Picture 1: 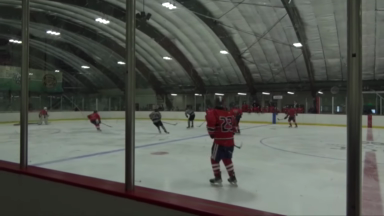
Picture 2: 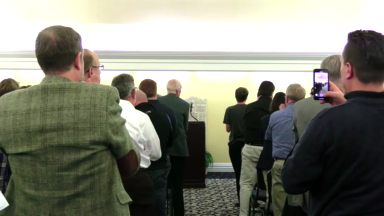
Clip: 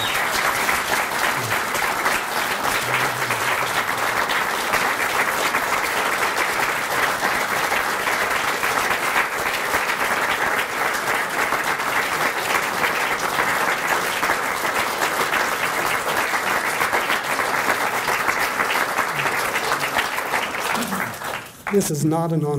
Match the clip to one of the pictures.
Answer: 2